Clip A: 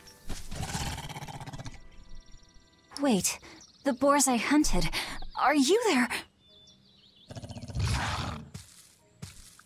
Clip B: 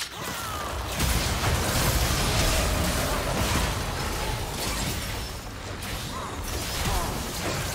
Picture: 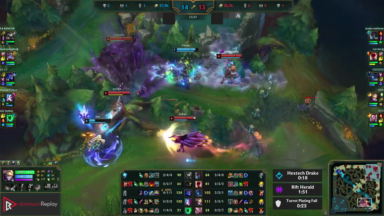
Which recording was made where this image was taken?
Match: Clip B